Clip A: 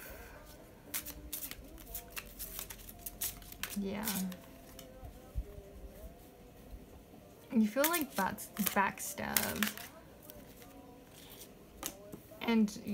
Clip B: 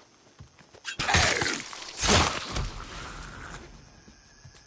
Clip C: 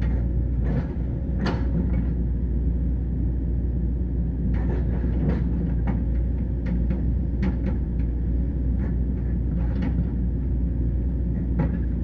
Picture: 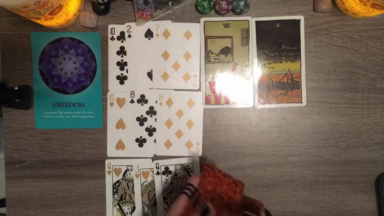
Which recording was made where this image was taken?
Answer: A